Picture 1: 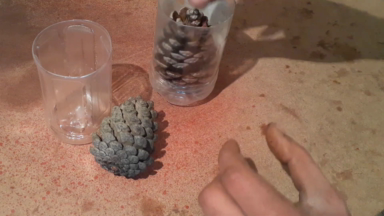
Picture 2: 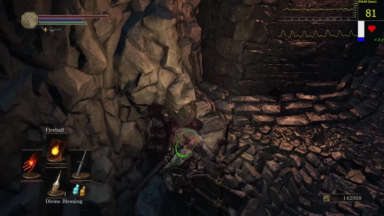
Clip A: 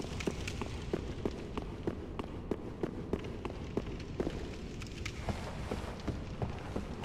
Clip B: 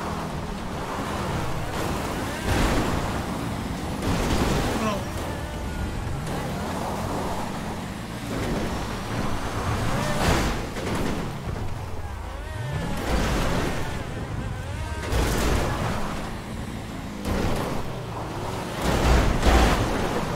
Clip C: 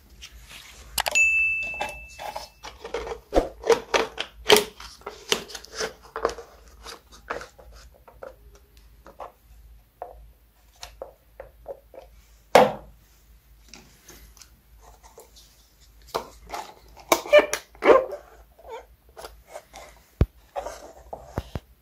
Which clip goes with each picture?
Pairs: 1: C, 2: A